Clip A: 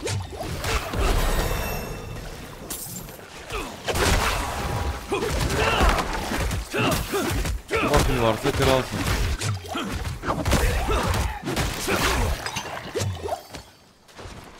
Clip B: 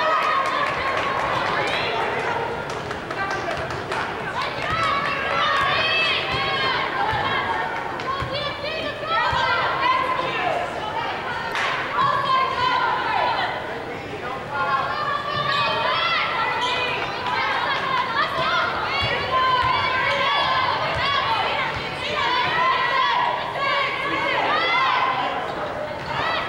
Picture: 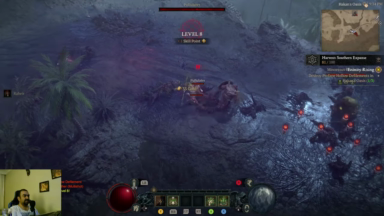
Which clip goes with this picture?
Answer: A